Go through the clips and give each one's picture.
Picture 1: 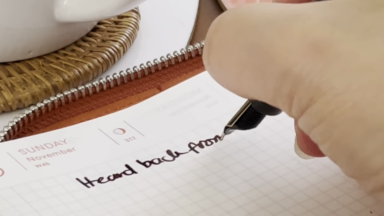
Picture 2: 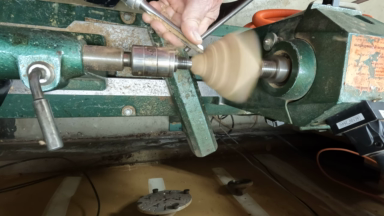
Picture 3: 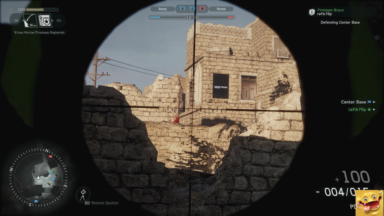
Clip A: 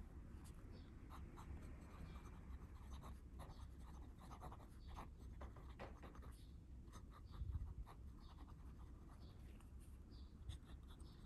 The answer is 1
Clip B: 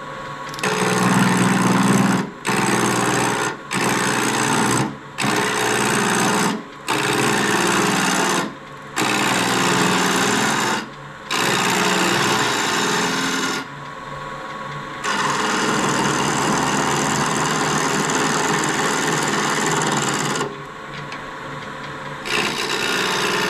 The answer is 2